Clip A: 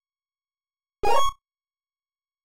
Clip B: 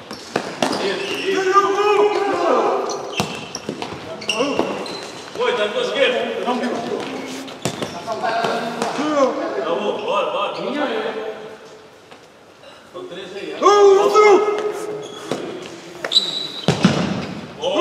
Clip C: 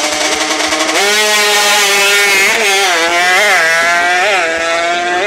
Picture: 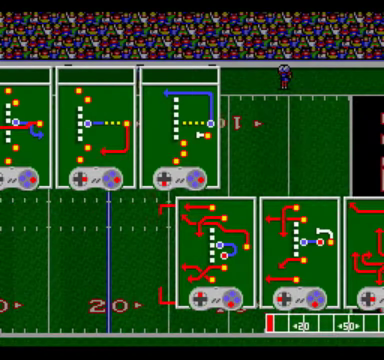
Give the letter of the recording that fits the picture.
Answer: A